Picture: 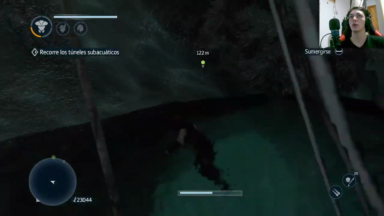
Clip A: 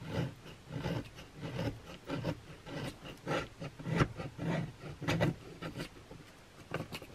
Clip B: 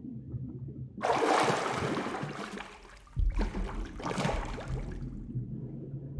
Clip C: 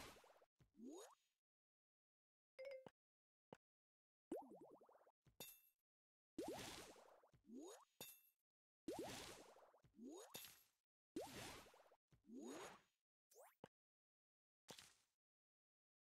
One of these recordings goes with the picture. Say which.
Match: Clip B